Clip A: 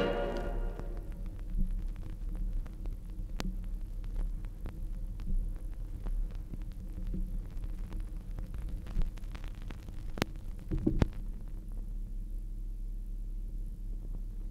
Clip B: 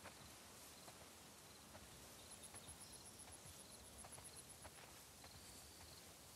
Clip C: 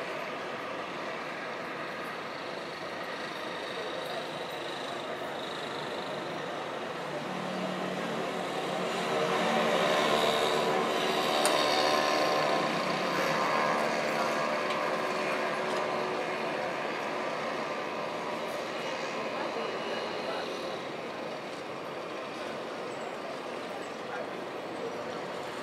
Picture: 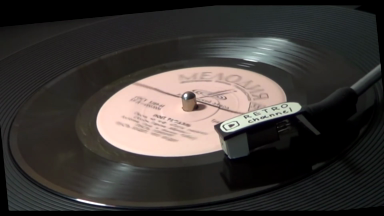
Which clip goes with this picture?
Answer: A